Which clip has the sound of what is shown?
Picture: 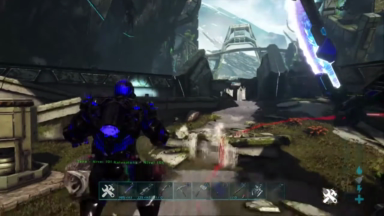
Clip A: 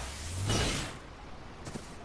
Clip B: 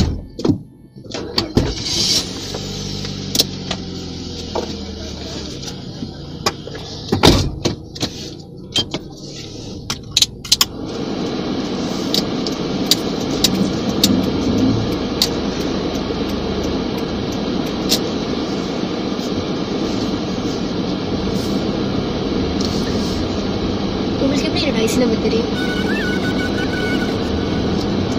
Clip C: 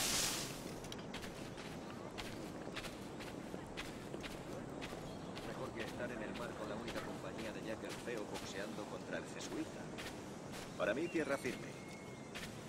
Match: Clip A